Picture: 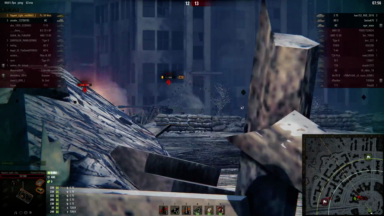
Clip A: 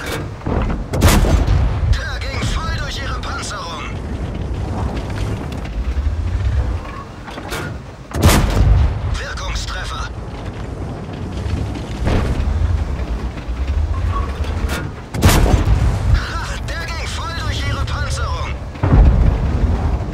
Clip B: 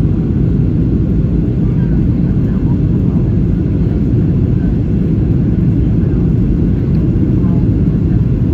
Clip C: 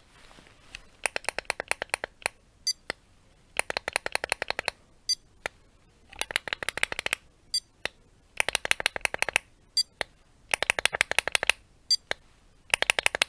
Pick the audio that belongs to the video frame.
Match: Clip A